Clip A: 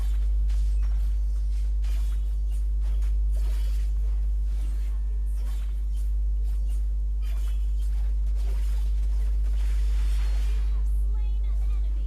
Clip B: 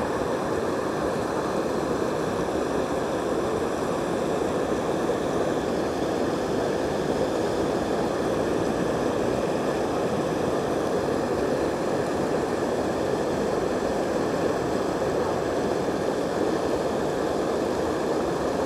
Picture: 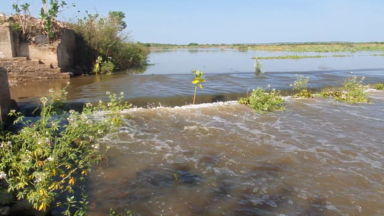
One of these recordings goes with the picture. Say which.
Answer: B